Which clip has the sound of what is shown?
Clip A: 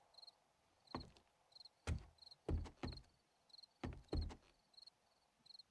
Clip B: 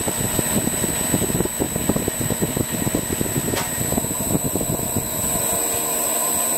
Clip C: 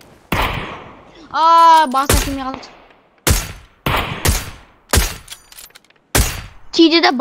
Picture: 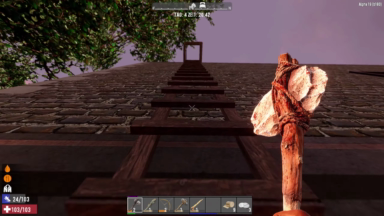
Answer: A